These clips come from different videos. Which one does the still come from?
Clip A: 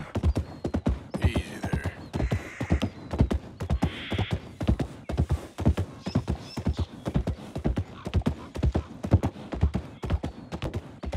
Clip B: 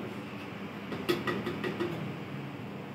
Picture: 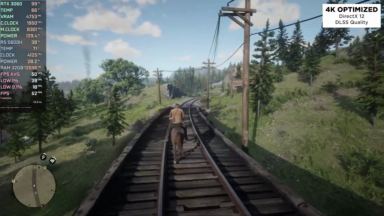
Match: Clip A